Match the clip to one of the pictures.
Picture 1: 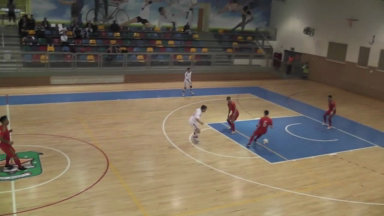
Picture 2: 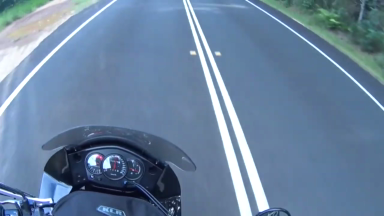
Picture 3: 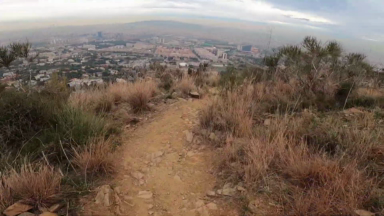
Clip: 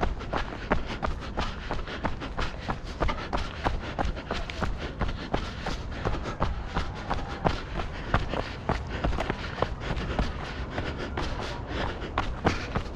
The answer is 3